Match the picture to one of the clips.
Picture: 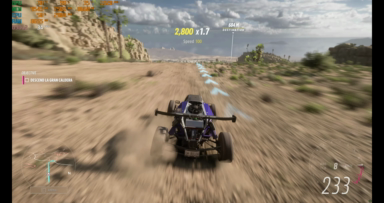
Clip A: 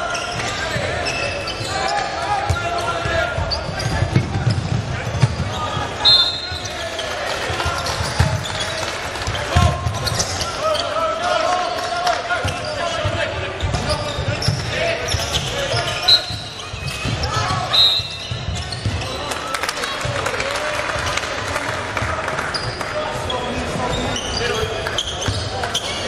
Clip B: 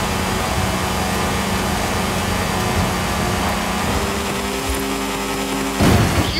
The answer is B